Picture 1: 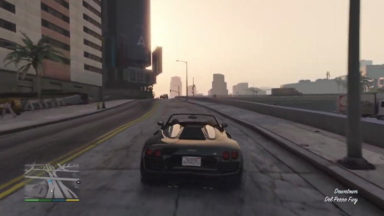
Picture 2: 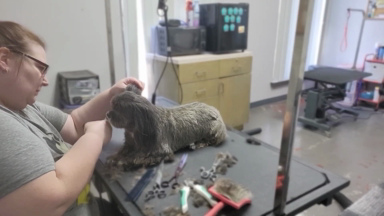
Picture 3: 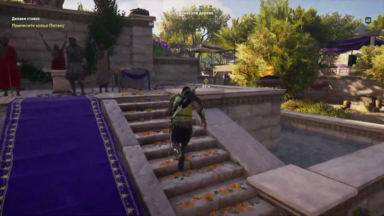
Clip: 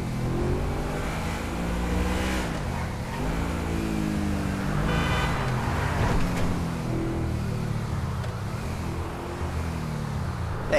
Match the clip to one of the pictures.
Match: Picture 1